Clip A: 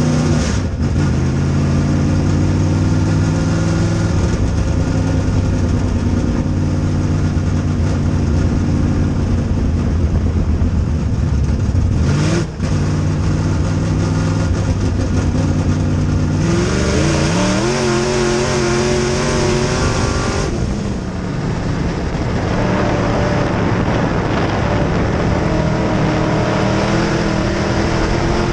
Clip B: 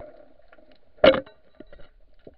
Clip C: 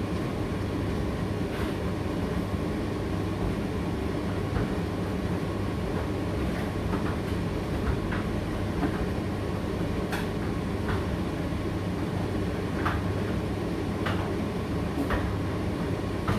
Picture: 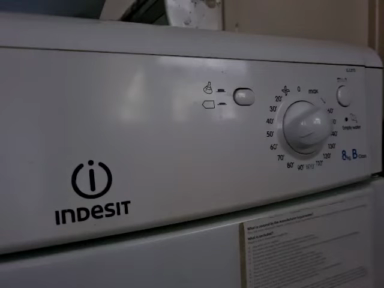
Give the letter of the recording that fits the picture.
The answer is C